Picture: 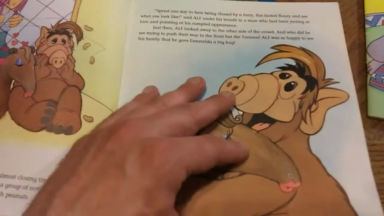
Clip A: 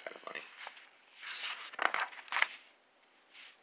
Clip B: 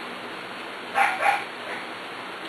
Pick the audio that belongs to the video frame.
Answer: A